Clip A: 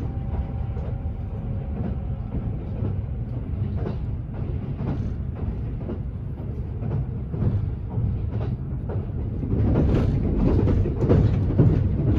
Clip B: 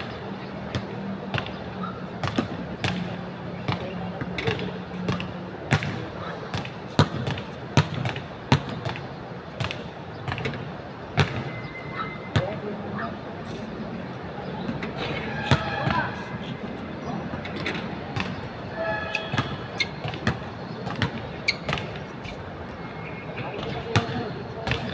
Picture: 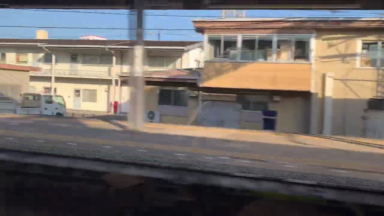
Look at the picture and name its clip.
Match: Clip A